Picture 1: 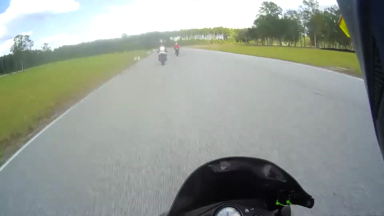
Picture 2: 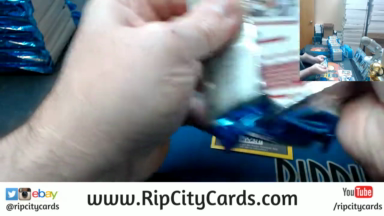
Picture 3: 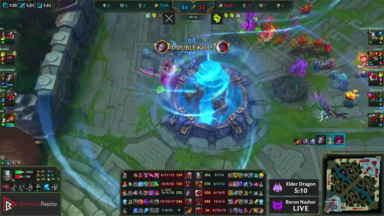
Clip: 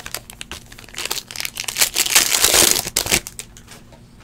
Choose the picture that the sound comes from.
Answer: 2